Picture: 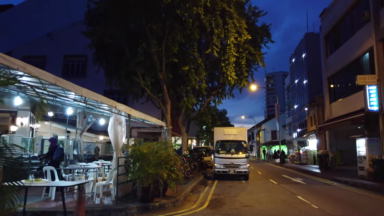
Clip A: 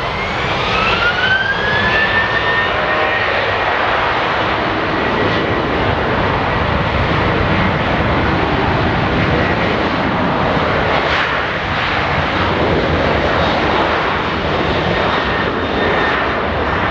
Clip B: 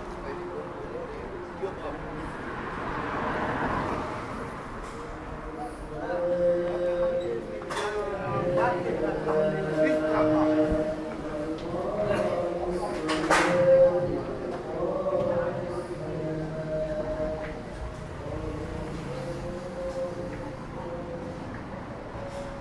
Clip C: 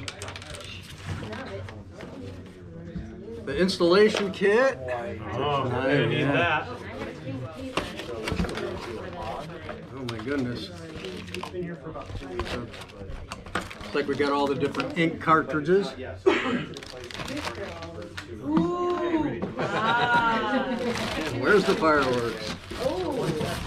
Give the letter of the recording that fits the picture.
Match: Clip B